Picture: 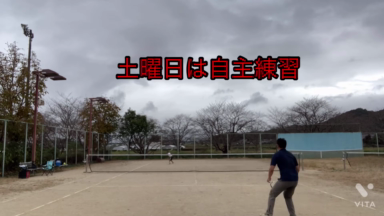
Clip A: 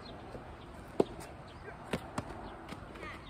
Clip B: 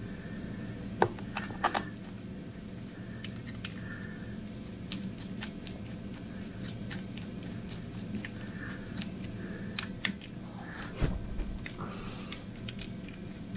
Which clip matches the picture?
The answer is A